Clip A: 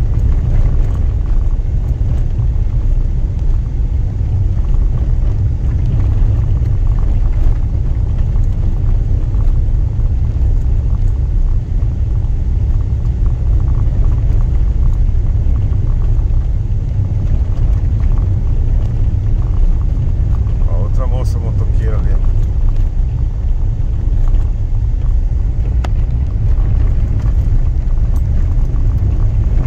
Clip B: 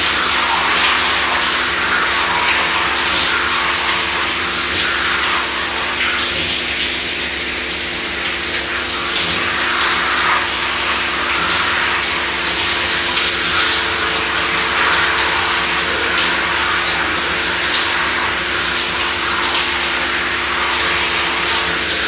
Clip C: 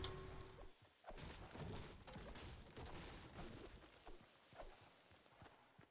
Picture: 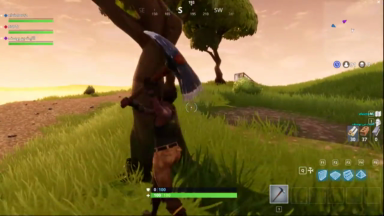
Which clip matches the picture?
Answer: C